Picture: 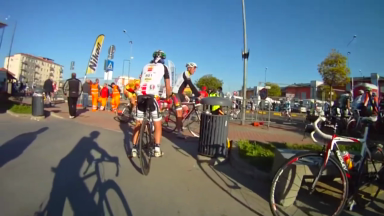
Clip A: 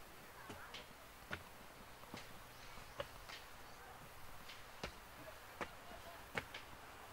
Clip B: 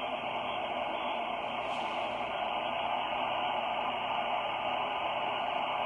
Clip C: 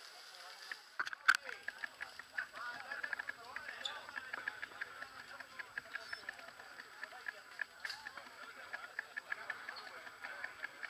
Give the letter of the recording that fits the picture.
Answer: C